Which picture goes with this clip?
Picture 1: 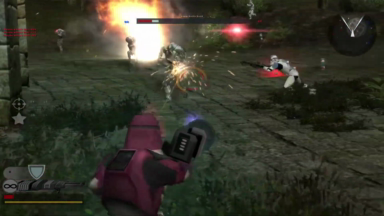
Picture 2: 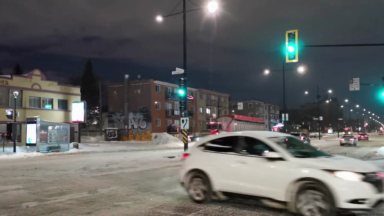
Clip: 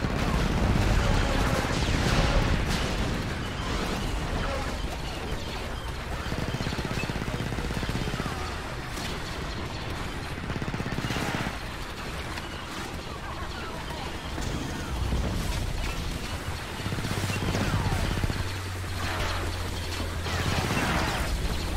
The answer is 1